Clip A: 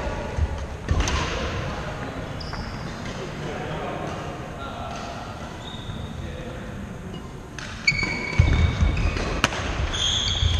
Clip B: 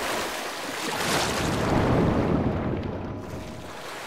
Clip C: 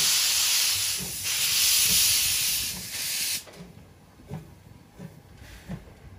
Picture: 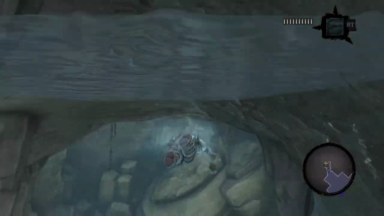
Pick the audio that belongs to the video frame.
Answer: B